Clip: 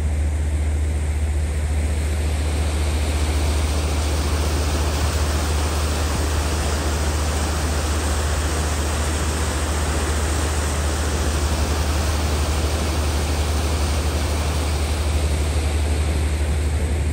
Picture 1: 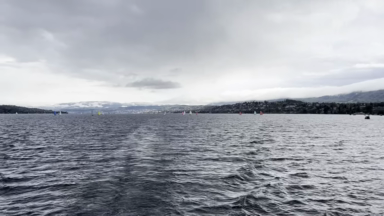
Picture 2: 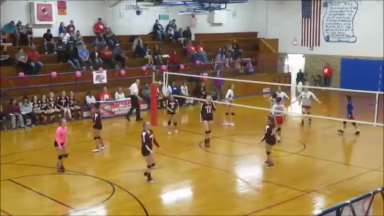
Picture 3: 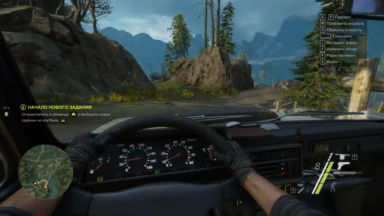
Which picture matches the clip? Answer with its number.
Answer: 1